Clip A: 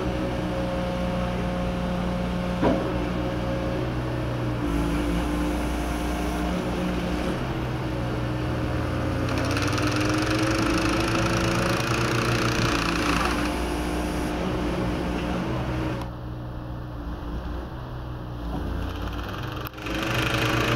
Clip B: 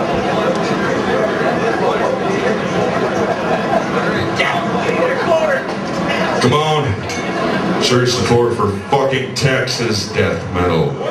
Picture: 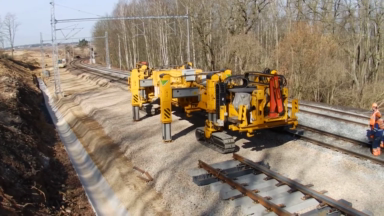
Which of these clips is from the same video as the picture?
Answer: A